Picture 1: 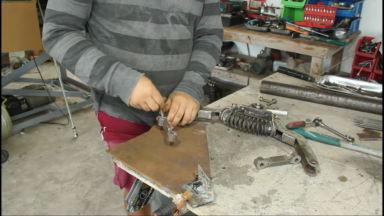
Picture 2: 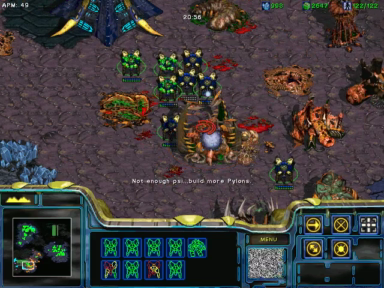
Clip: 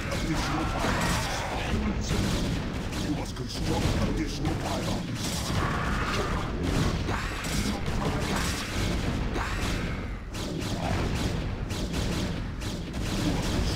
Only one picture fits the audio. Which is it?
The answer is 2